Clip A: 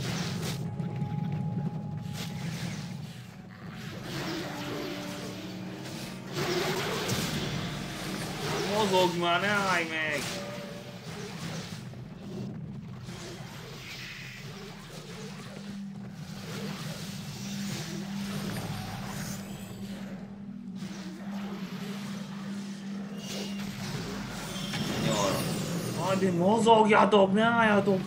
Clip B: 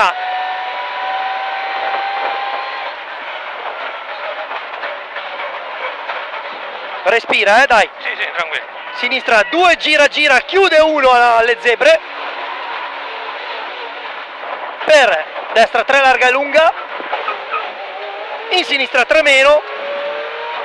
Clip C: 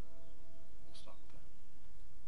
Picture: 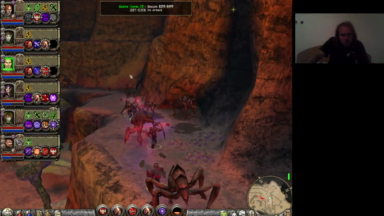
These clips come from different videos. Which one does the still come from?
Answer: A